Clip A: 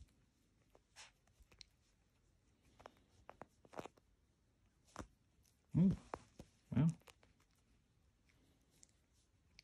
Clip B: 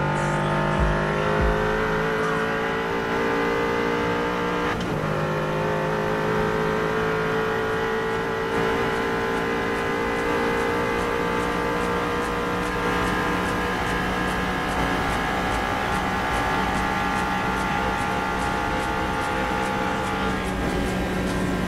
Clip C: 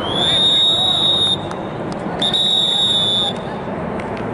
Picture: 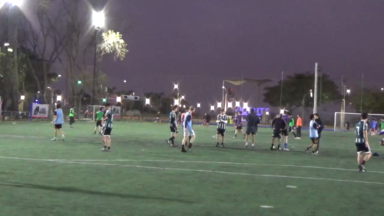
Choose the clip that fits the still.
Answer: C